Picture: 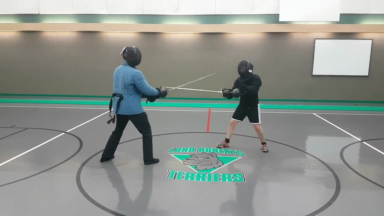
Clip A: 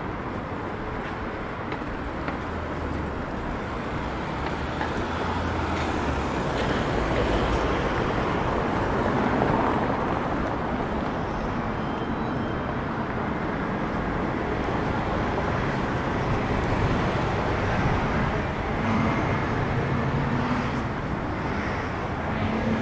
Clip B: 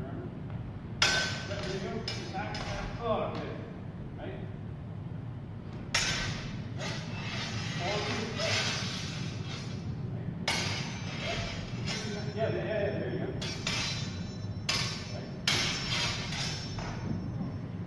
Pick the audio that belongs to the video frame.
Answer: B